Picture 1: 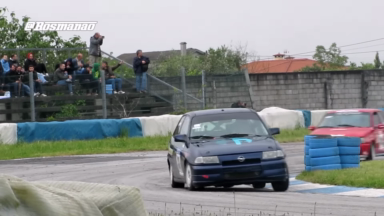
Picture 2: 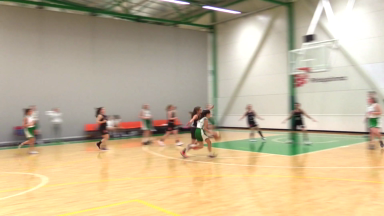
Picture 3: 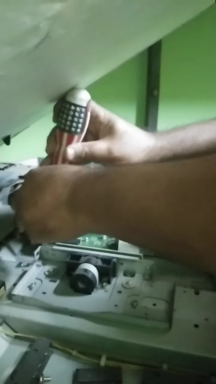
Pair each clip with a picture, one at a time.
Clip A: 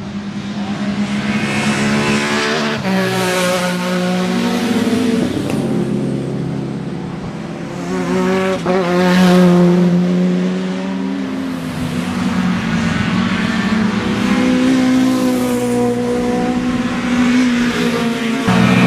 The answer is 1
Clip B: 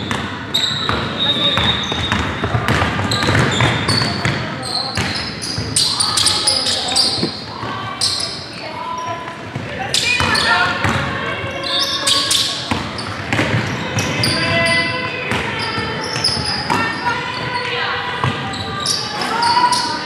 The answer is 2